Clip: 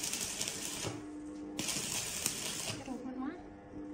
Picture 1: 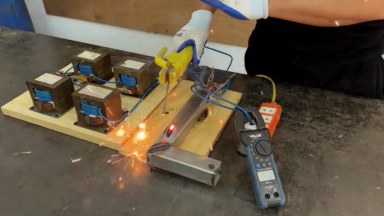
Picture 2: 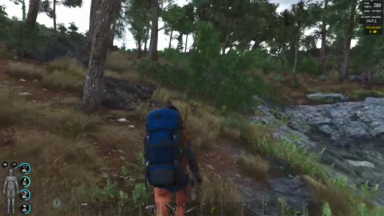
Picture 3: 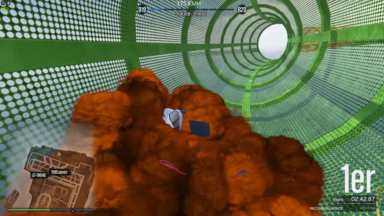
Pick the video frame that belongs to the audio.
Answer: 1